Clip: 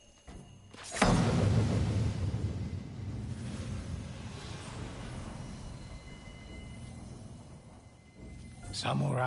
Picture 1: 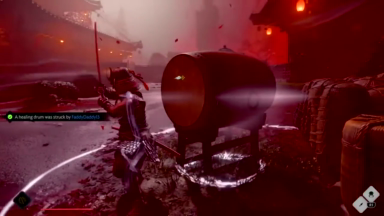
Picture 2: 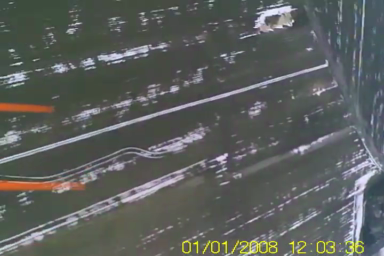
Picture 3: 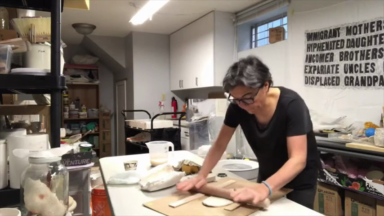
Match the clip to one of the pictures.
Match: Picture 1